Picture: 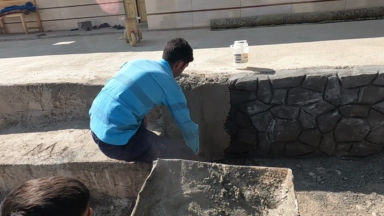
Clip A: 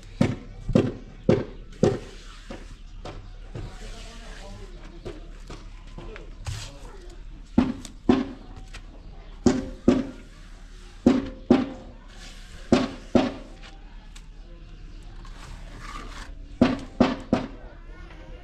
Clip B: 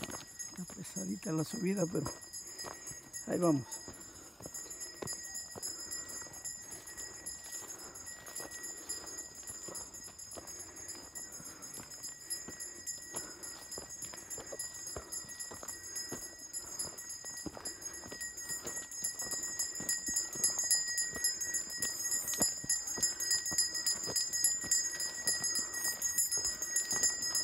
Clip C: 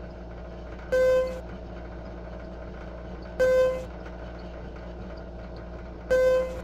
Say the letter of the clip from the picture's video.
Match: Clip A